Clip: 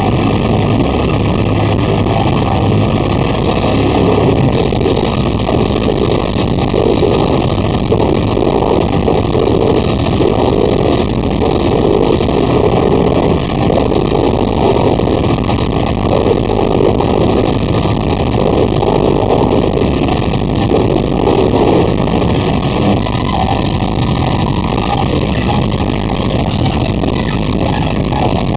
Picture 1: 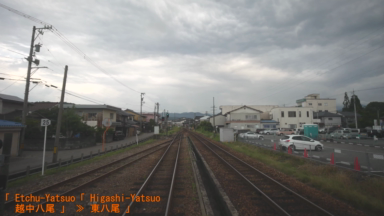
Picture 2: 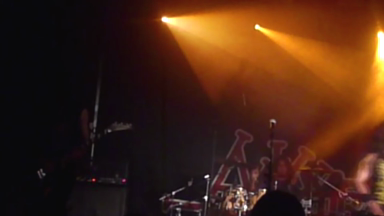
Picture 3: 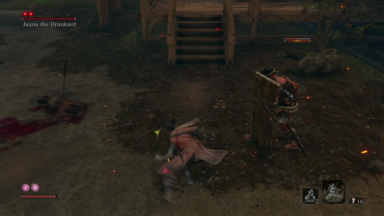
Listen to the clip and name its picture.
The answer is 2